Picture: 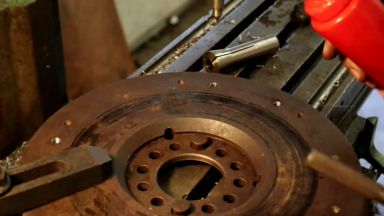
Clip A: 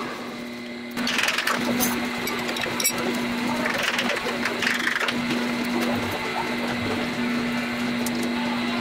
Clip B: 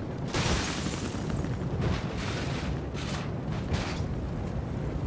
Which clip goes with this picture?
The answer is A